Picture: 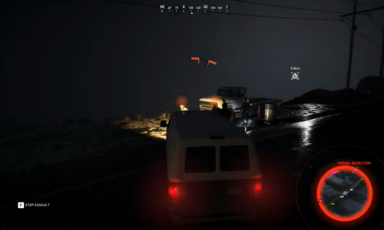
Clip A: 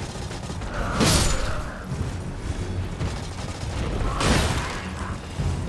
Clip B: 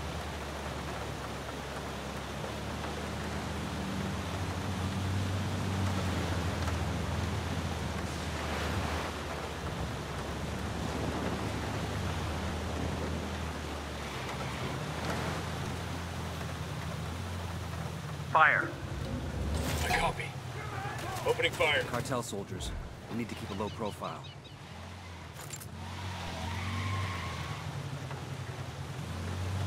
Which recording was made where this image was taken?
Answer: B